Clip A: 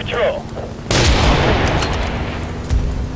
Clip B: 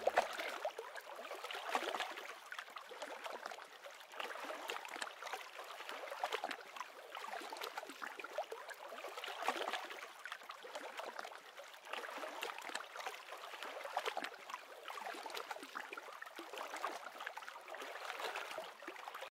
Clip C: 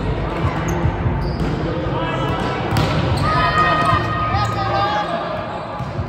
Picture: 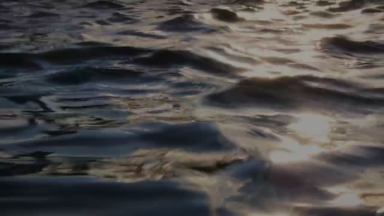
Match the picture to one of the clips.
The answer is B